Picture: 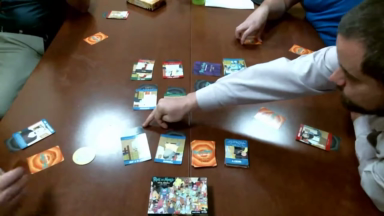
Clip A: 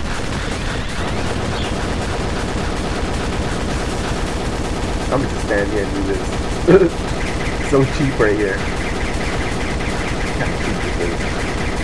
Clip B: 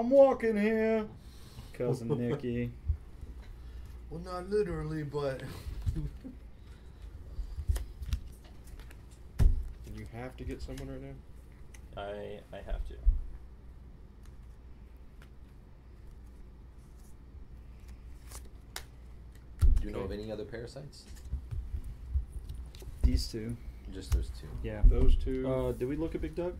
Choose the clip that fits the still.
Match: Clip B